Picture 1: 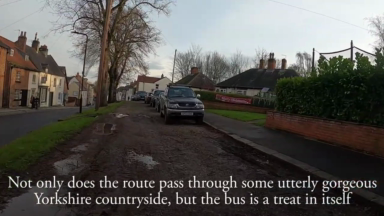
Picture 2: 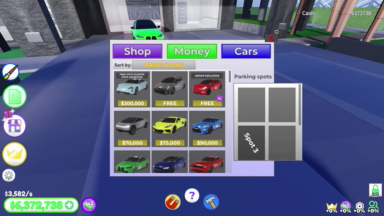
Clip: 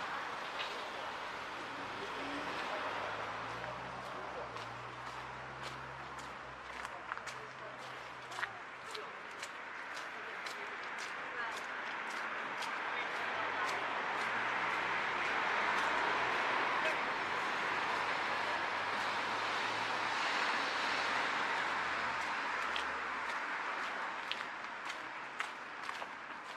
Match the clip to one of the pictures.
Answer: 1